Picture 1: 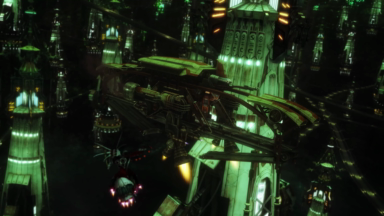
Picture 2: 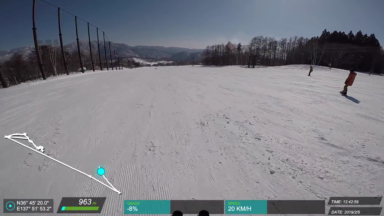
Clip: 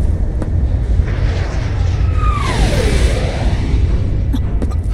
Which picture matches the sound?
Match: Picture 1